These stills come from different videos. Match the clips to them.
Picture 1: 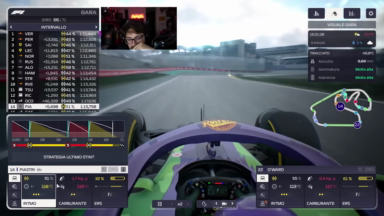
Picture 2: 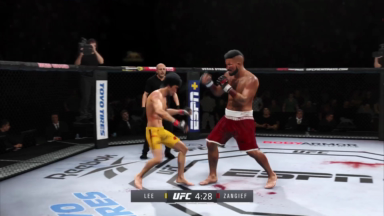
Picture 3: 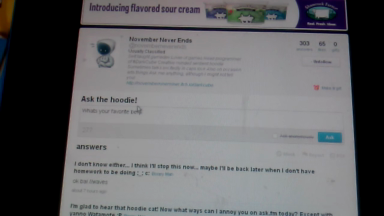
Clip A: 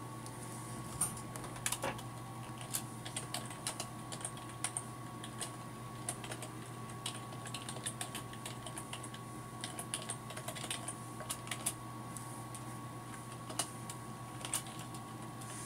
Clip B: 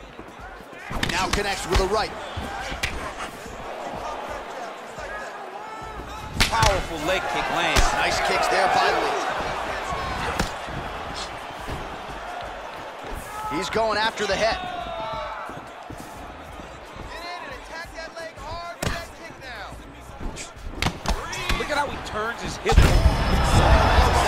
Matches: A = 3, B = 2